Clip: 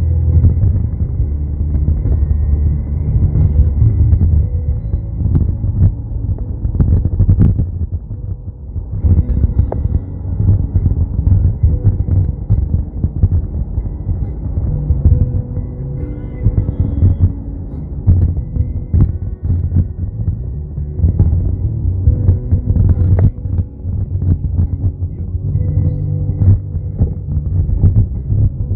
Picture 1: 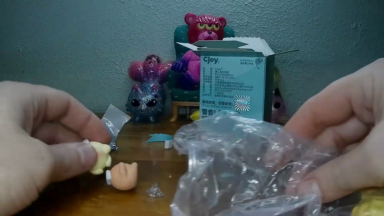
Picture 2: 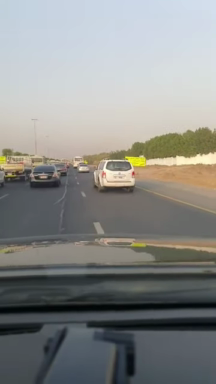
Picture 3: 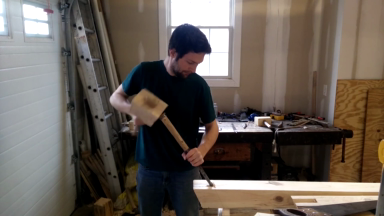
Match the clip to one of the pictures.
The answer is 2